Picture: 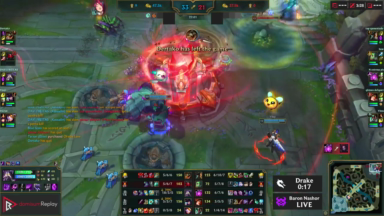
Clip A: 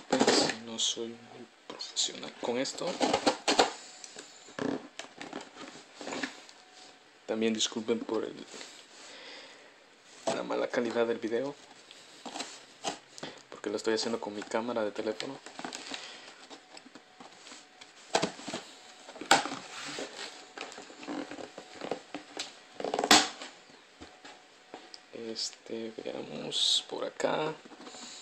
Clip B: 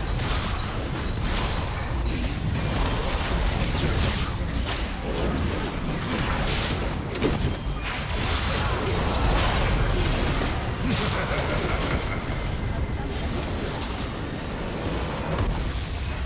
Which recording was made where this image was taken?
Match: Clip B